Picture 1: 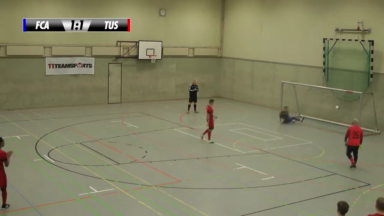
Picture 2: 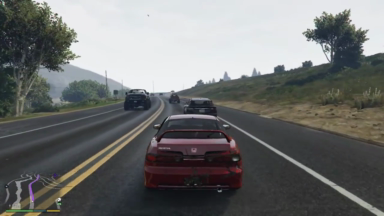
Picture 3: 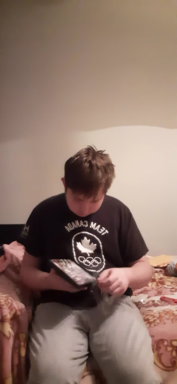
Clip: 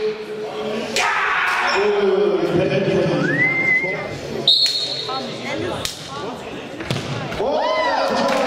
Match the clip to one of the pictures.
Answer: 1